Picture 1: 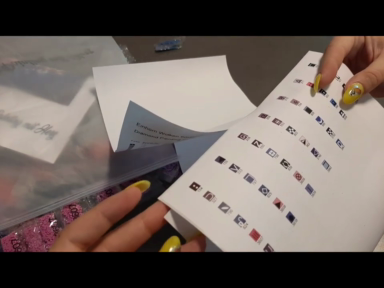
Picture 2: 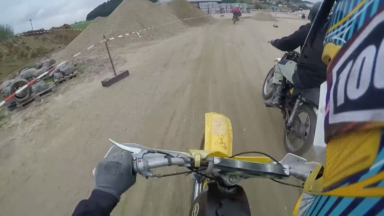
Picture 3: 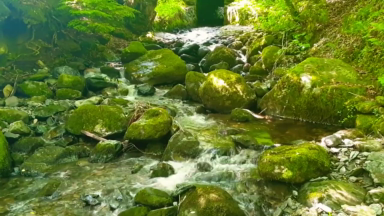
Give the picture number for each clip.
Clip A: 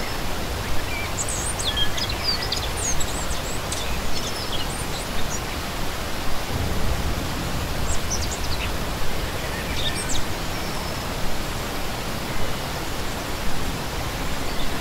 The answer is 3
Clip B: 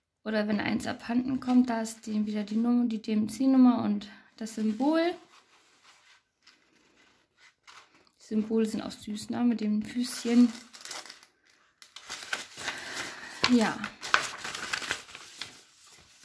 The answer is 1